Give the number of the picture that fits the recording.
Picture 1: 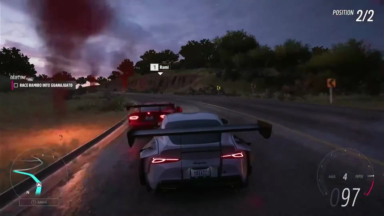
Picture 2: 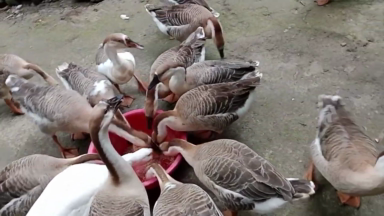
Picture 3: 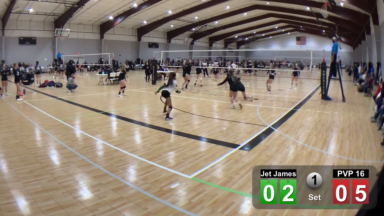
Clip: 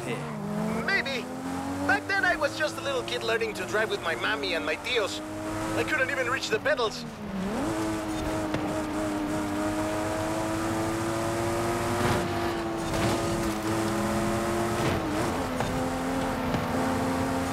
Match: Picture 1